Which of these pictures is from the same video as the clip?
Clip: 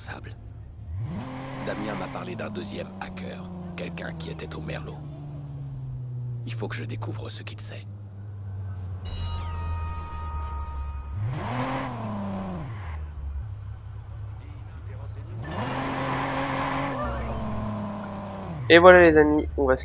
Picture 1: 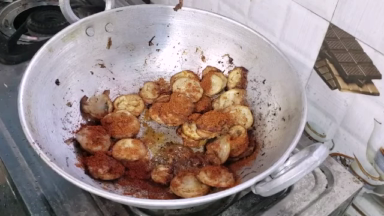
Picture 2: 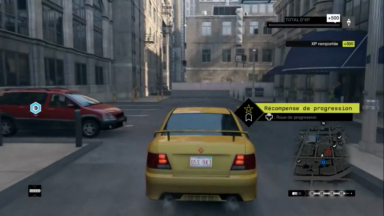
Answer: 2